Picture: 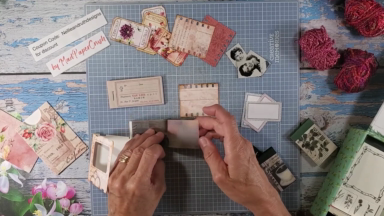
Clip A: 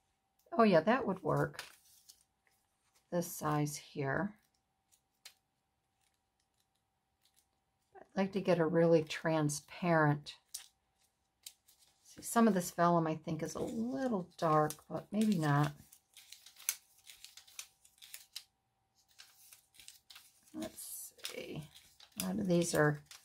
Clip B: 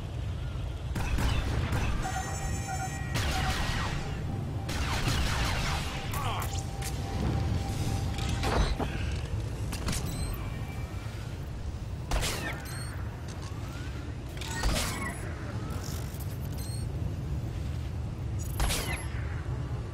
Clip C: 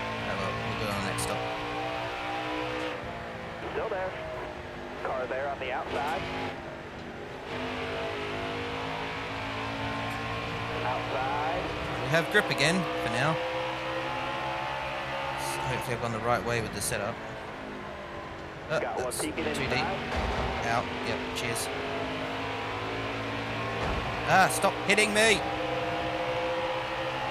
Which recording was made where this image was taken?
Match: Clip A